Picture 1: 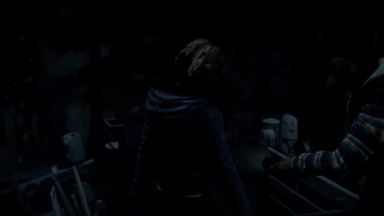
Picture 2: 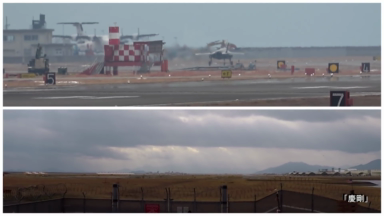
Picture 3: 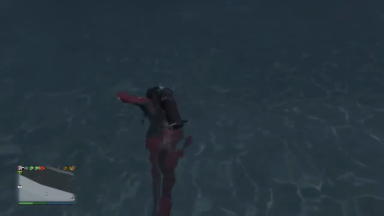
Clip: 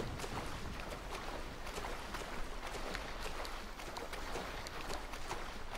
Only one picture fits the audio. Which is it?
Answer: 3